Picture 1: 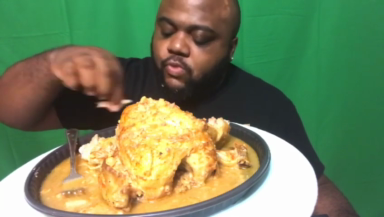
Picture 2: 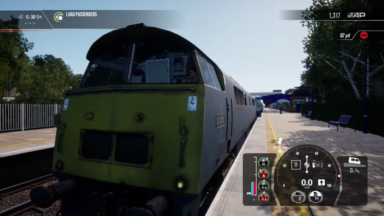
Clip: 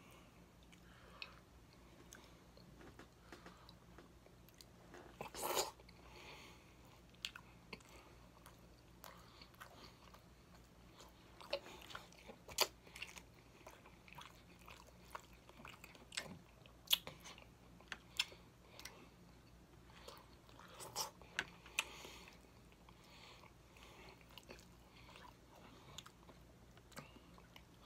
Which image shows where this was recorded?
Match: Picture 1